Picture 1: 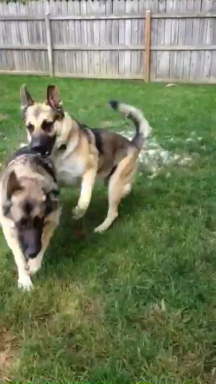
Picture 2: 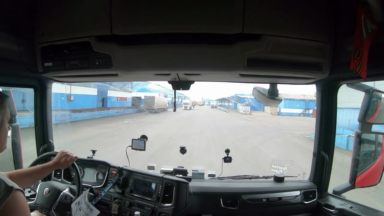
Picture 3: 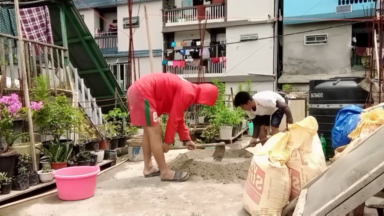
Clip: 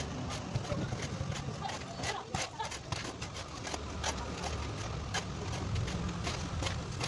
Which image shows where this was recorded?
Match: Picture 3